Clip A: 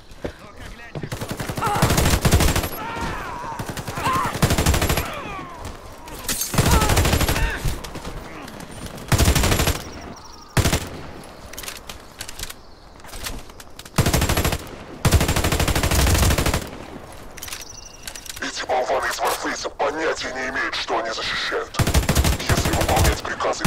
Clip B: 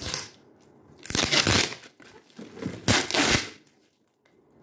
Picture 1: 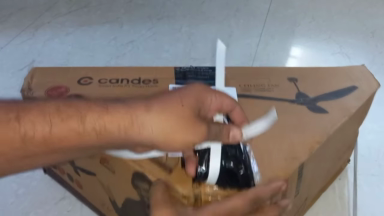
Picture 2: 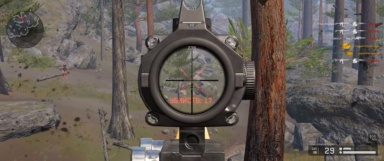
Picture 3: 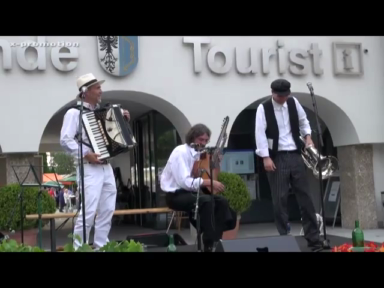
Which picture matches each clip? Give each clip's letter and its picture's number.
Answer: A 2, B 1